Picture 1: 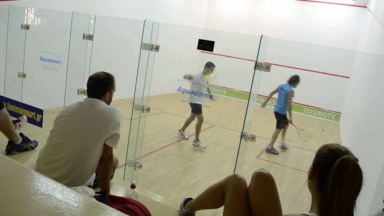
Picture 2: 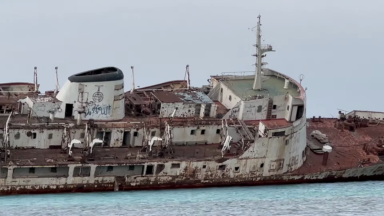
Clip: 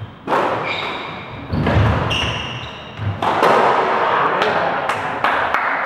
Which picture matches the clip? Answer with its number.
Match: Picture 1